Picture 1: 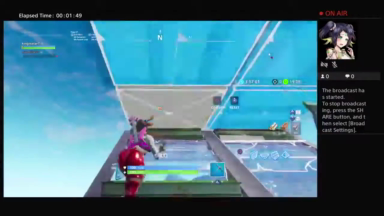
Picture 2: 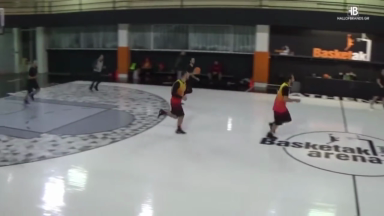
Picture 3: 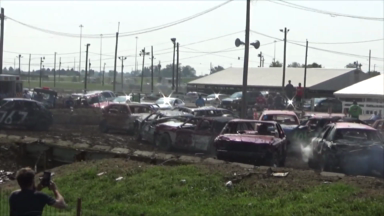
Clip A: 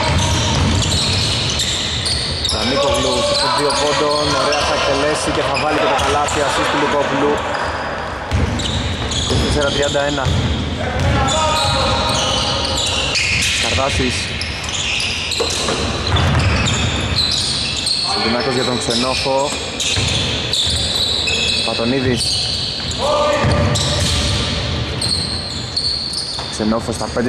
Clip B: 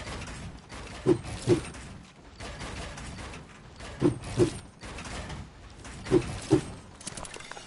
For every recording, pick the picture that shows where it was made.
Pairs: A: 2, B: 1